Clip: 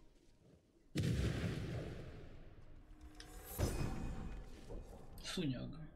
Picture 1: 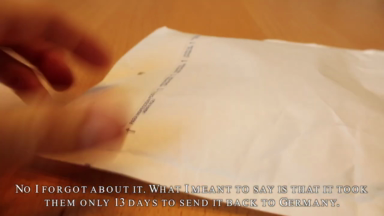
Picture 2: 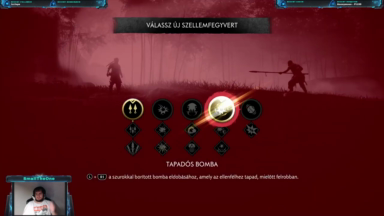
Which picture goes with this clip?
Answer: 2